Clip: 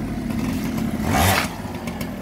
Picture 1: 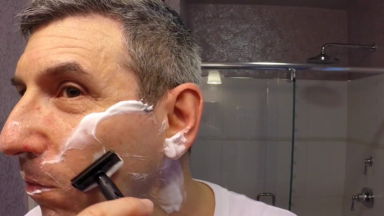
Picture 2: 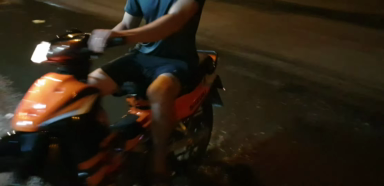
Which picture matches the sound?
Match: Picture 2